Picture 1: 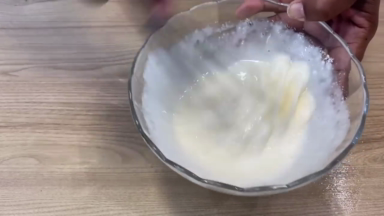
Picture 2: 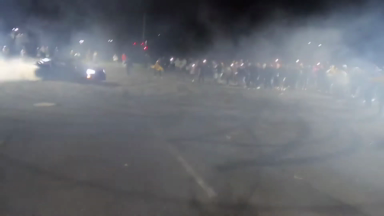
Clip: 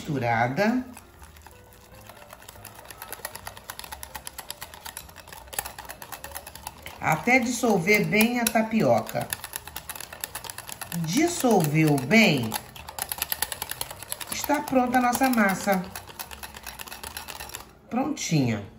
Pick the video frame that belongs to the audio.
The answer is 1